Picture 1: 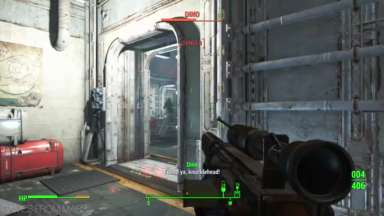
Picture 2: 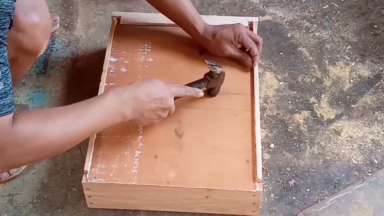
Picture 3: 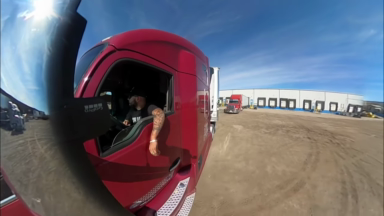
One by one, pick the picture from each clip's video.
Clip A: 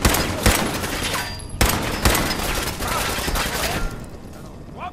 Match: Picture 1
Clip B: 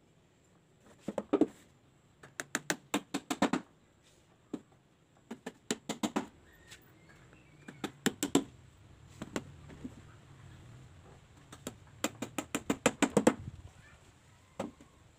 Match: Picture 2